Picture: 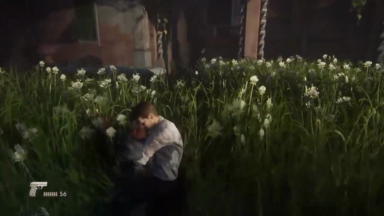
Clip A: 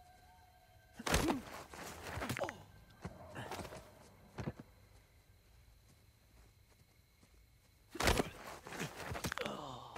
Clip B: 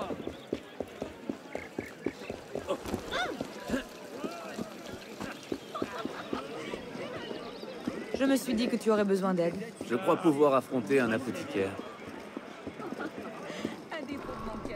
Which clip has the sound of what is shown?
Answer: A